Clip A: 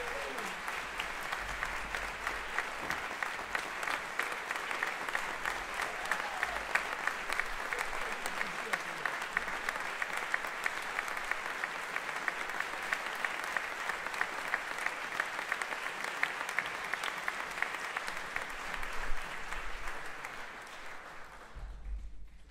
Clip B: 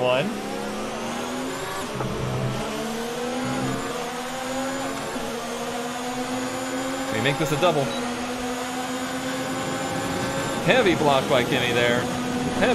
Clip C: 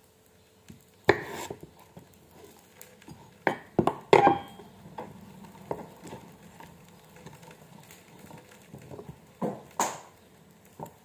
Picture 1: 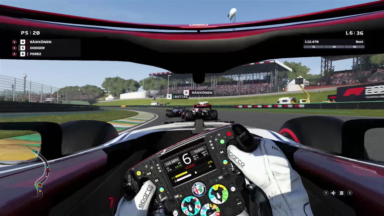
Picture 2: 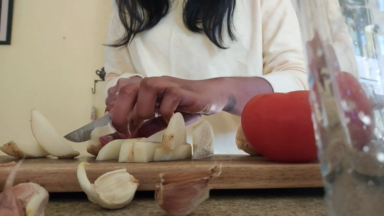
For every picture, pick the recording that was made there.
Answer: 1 B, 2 C